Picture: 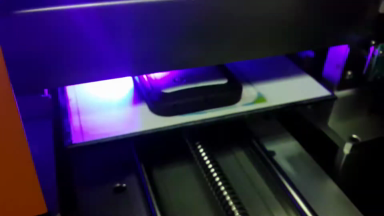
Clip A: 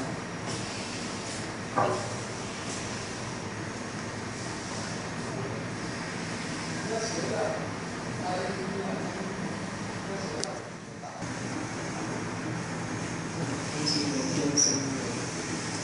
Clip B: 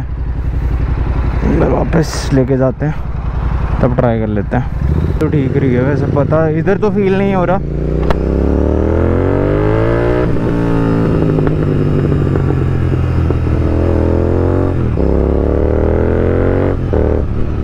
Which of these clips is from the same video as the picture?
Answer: A